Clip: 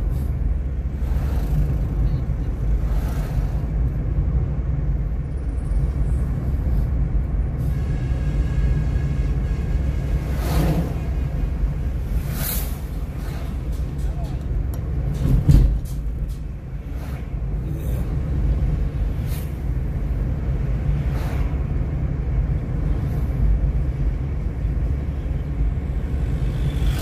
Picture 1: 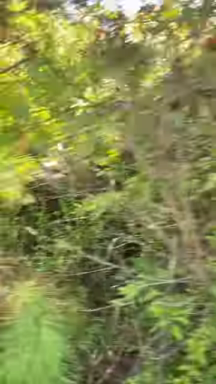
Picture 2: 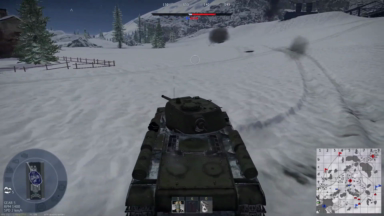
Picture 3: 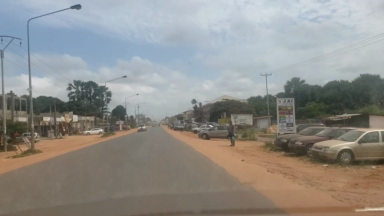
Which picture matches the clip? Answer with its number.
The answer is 3